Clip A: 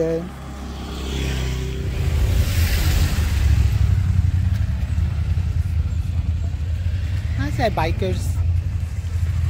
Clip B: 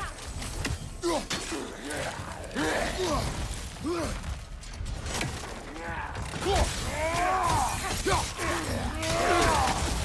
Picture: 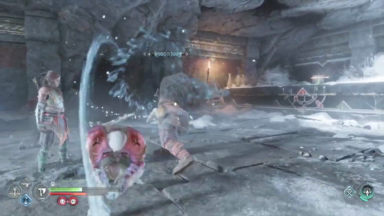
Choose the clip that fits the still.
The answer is B